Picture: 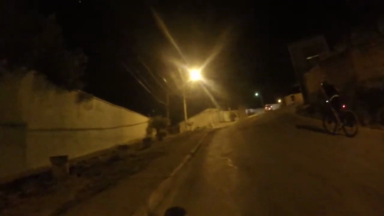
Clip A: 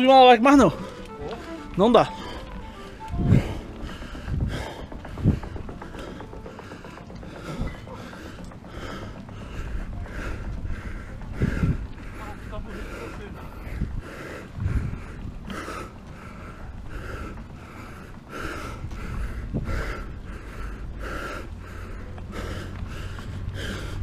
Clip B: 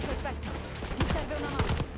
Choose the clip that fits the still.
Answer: A